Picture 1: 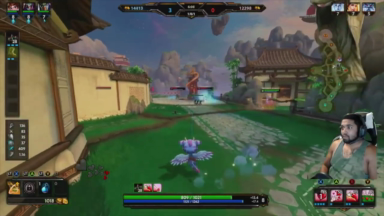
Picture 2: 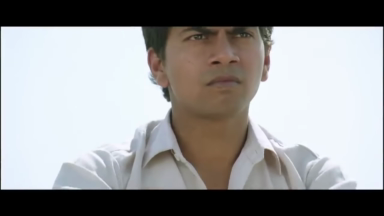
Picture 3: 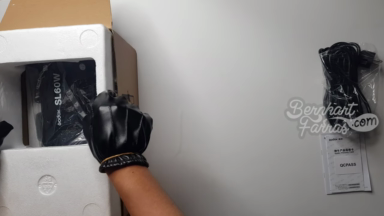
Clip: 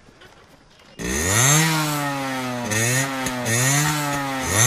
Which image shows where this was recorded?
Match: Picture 2